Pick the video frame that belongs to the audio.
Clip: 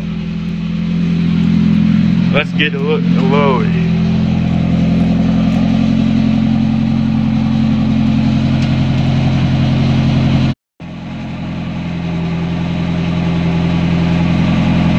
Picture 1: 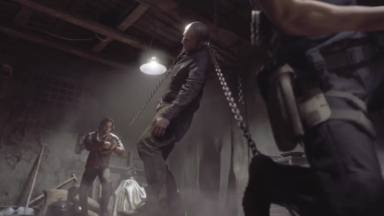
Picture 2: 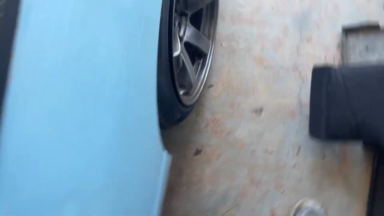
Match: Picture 2